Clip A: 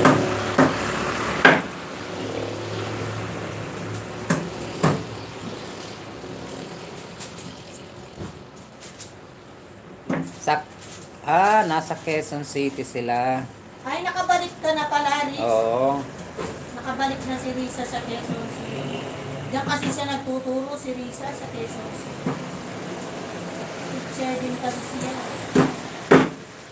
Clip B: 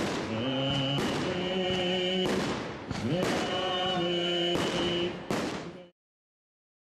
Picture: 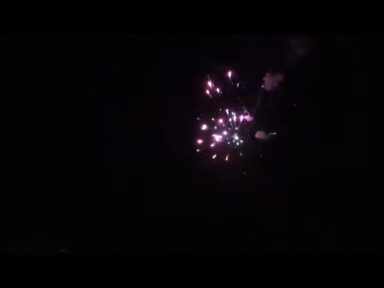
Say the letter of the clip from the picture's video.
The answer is B